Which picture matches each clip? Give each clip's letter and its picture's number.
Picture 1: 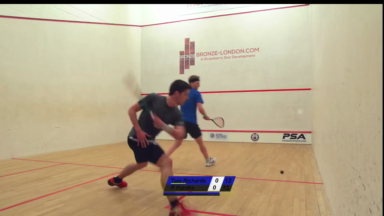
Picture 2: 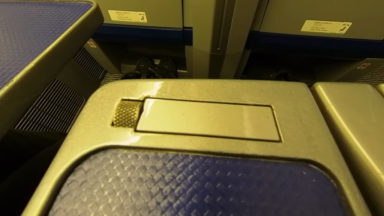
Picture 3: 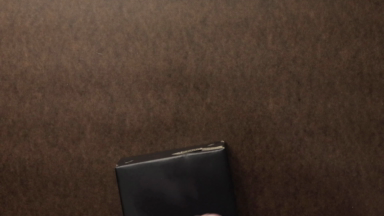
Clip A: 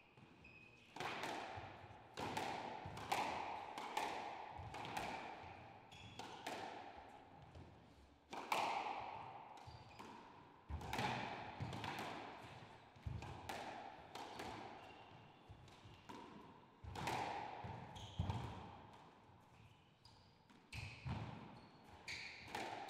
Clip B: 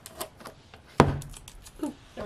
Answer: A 1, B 3